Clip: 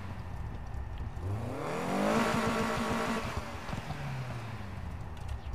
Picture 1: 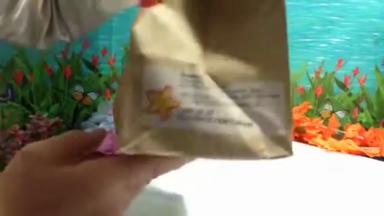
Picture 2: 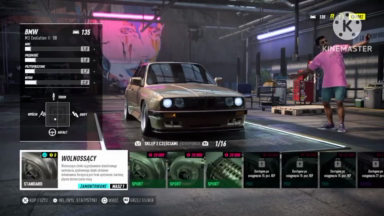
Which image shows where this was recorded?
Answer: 2